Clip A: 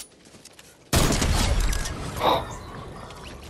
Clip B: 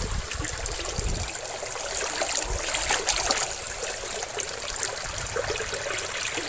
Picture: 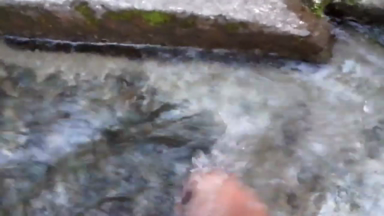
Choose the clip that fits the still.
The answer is B